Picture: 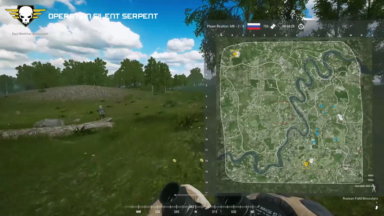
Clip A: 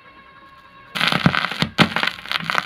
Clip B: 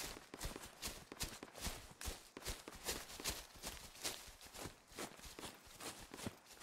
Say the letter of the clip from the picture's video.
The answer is B